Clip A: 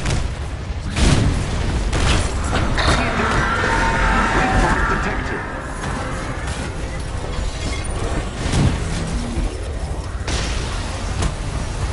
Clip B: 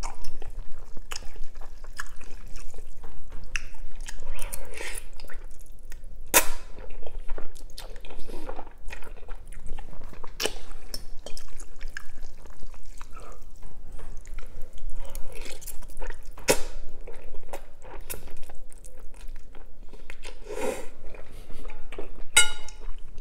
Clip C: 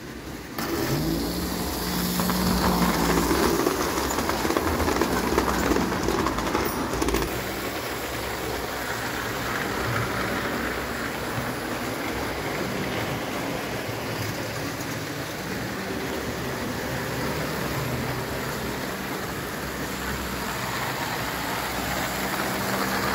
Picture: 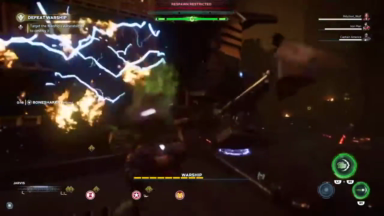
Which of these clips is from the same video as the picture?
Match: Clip A